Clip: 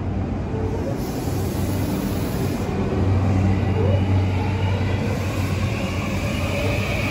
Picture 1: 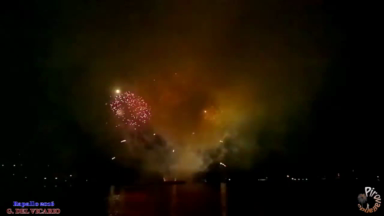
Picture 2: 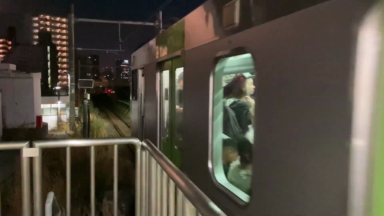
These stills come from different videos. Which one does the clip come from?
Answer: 2